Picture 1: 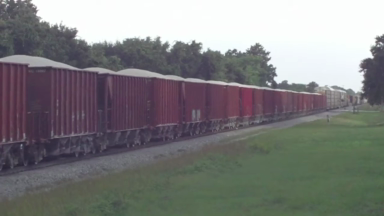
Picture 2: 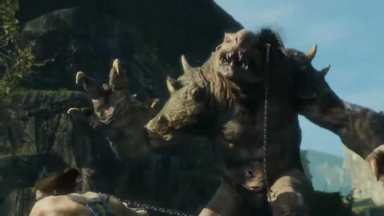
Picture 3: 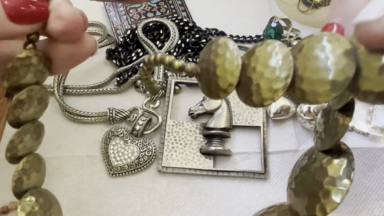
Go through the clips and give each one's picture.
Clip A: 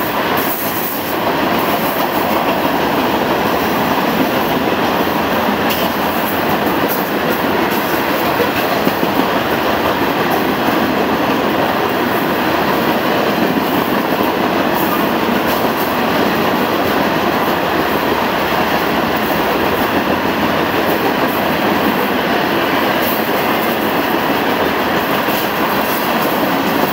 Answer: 1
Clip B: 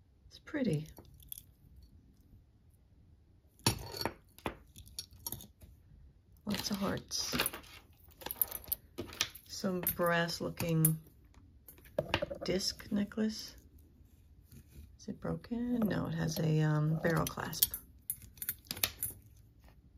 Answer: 3